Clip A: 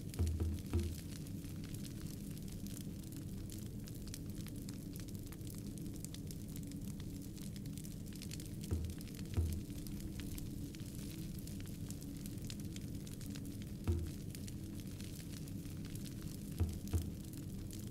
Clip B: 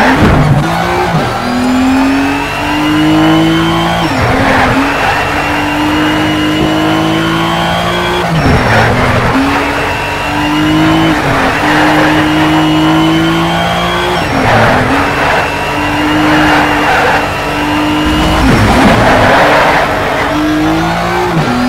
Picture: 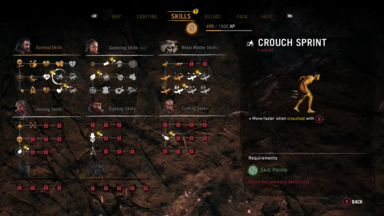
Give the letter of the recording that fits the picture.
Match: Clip A